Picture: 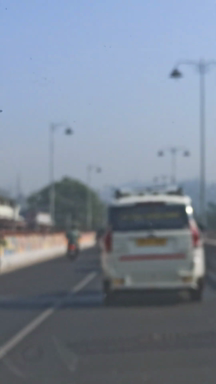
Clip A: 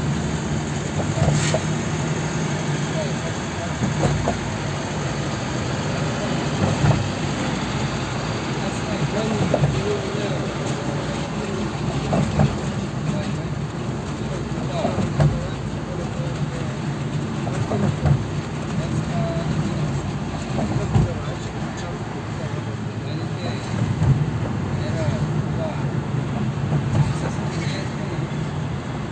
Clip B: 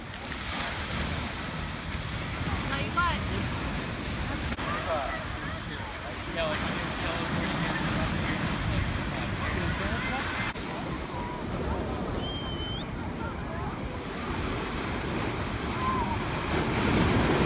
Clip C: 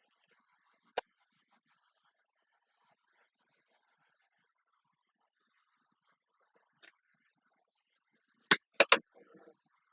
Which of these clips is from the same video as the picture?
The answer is A